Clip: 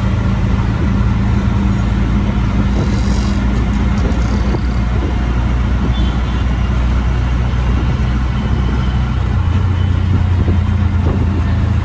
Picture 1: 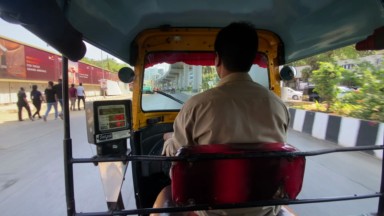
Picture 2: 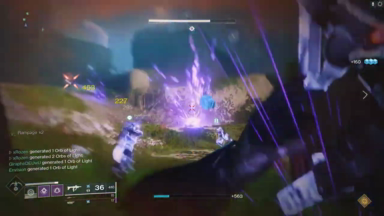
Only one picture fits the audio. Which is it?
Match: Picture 1